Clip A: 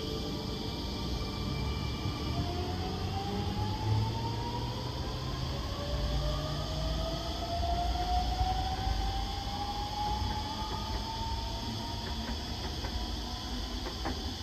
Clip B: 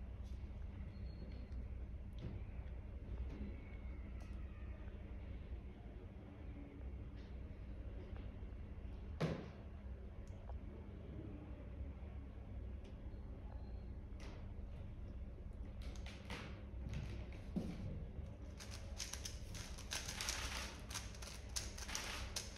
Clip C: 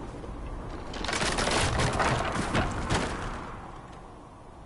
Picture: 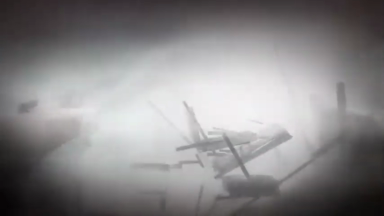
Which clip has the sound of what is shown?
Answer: C